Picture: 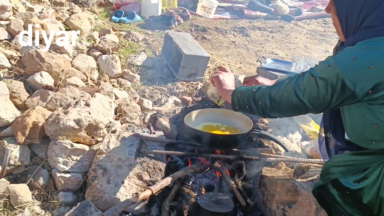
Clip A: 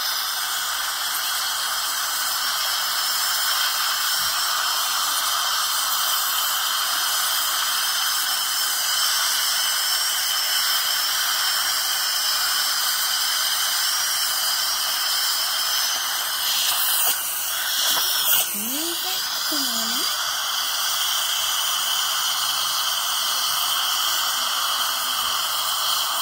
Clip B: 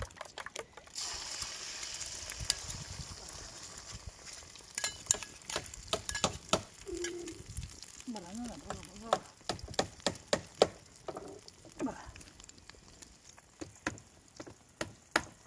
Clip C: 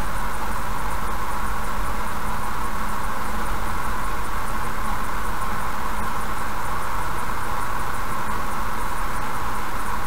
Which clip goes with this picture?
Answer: B